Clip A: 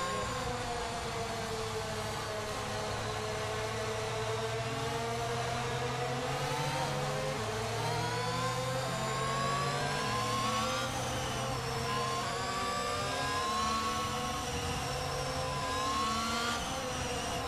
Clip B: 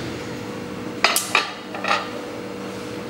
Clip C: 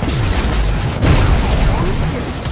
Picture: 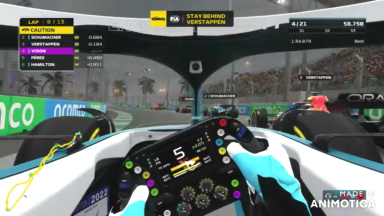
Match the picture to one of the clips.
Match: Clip A